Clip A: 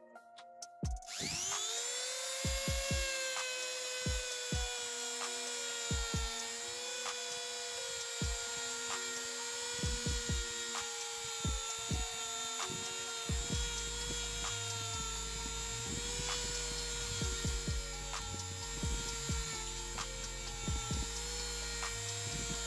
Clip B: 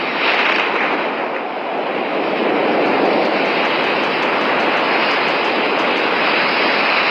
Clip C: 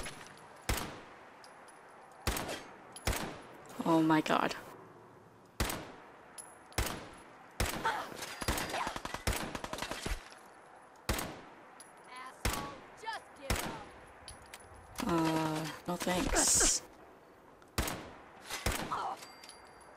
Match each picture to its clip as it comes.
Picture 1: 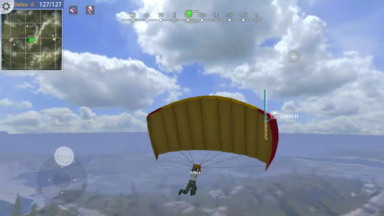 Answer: B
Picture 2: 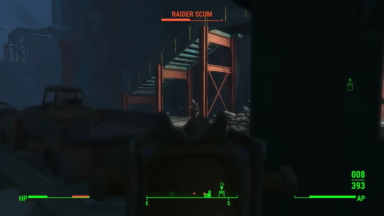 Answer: C